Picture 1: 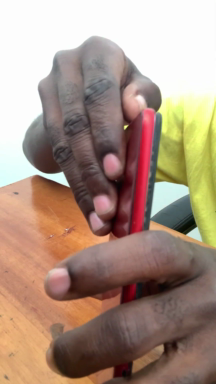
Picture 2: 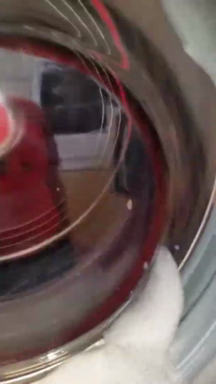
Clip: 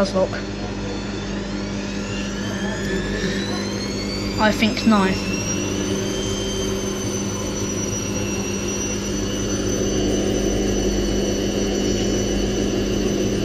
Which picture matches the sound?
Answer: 2